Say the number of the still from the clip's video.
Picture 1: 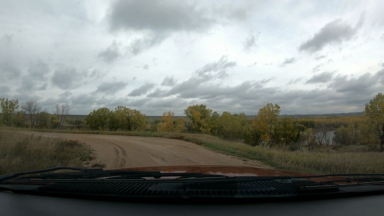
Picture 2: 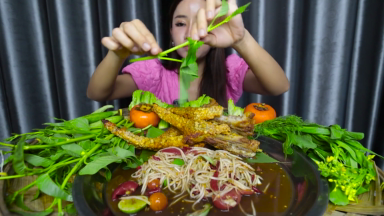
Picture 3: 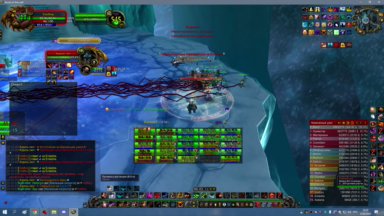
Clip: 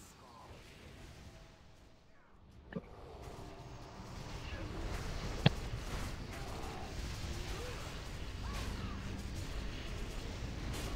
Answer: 3